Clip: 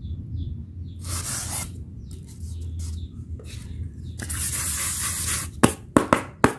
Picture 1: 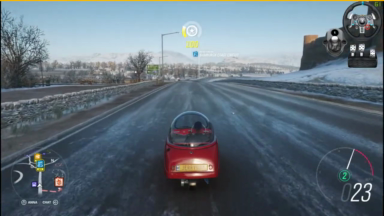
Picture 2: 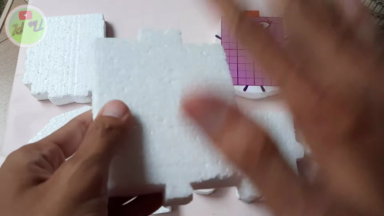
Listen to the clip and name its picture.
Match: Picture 2